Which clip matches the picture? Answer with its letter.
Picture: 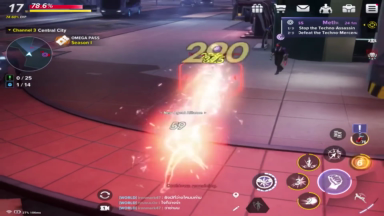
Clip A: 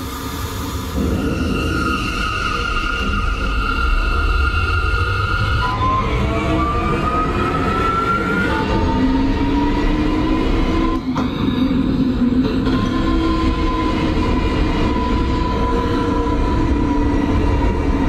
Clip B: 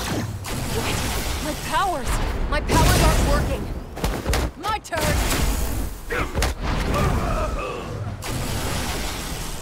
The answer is B